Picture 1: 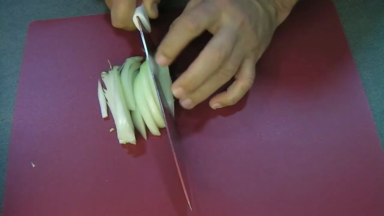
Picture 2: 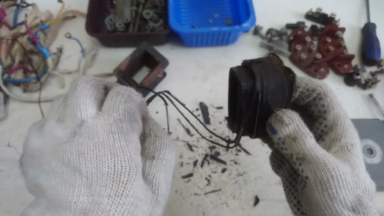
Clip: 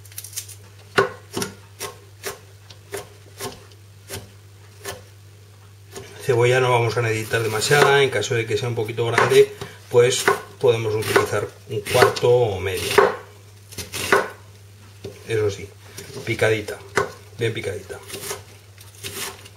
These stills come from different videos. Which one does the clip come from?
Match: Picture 1